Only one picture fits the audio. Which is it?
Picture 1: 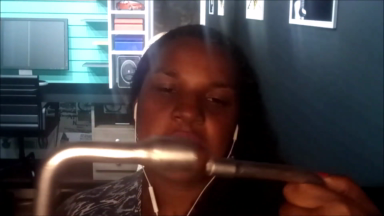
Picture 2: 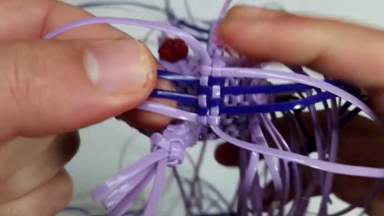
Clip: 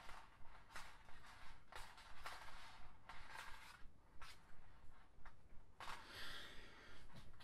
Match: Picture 2